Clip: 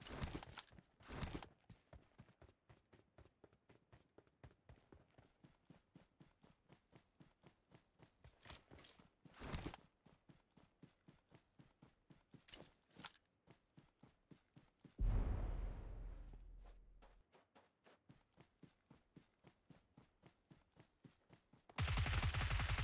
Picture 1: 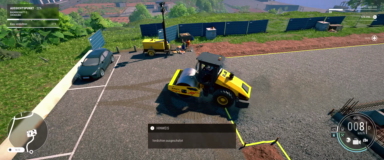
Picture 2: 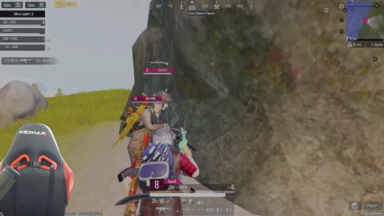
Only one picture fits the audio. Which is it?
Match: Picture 2